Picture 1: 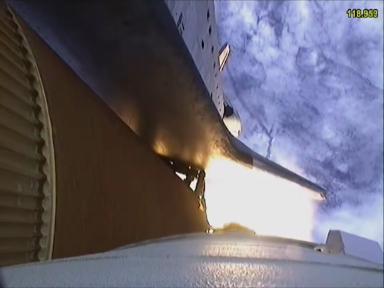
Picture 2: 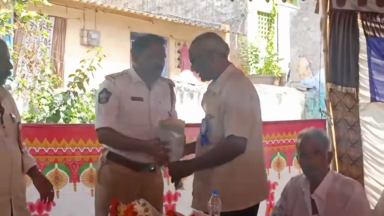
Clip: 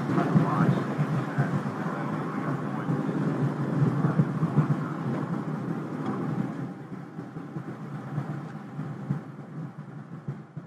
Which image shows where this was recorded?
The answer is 1